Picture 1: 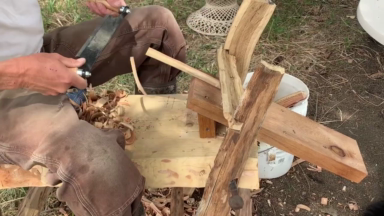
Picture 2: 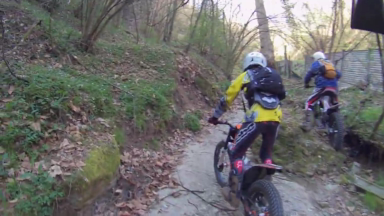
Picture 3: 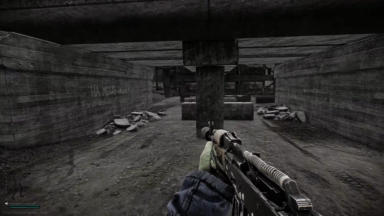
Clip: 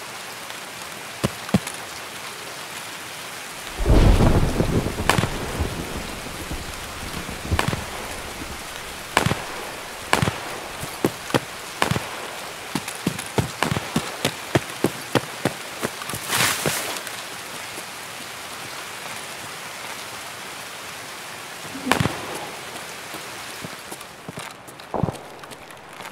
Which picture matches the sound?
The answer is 3